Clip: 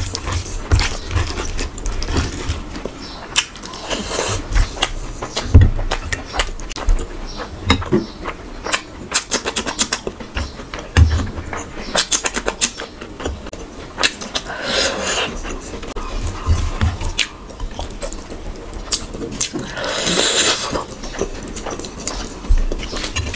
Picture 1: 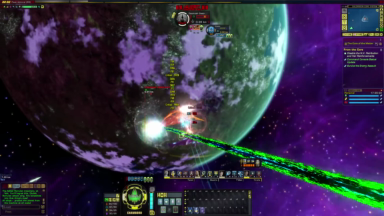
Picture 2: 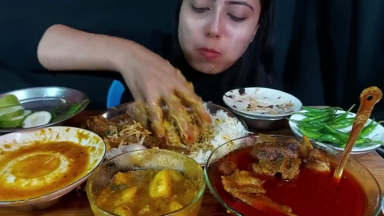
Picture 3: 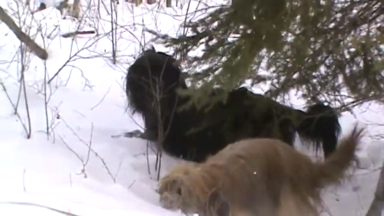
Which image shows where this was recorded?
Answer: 2